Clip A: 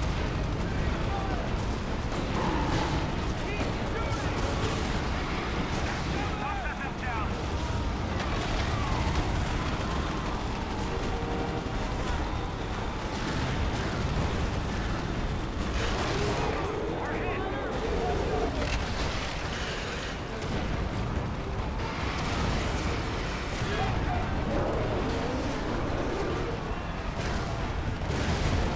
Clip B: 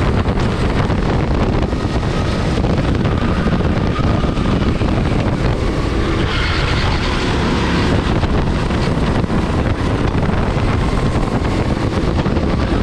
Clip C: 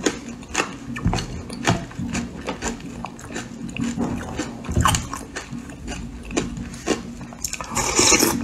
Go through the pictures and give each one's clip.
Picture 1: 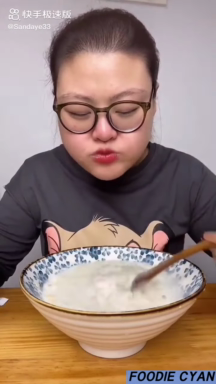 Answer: C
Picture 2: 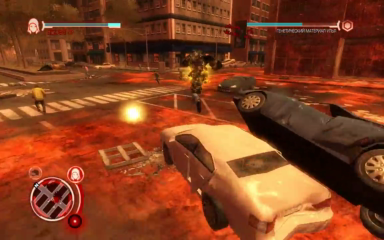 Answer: A